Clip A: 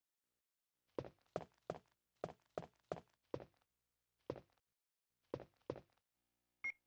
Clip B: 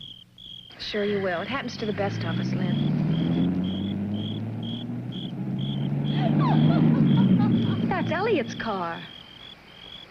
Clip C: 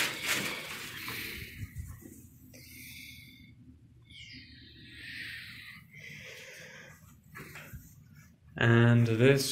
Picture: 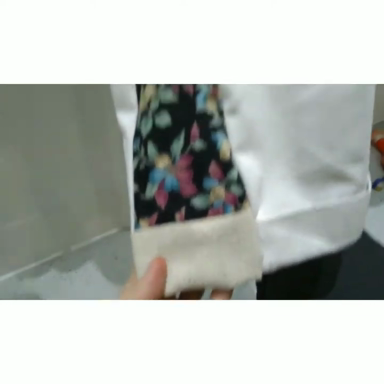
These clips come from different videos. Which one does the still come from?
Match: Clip C